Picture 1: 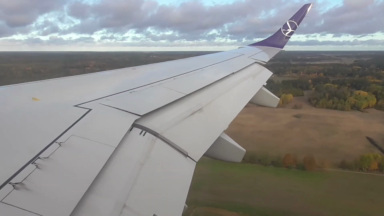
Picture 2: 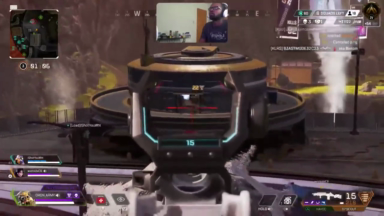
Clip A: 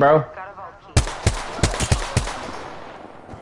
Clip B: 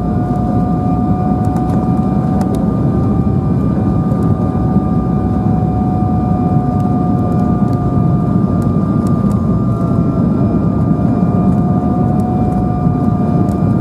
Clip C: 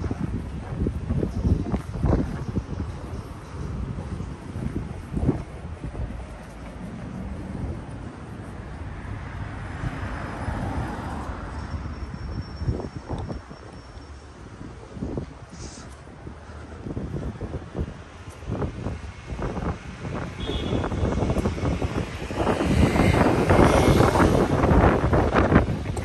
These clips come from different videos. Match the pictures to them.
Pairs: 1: B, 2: A